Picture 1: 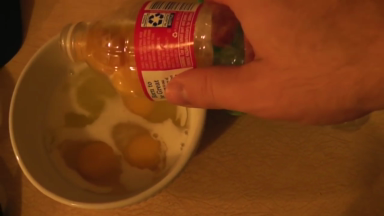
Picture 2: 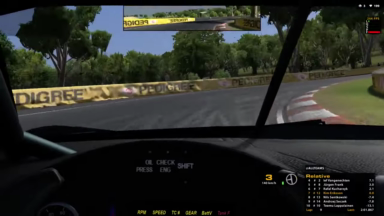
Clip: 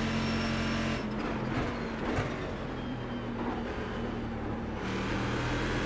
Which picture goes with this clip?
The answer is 2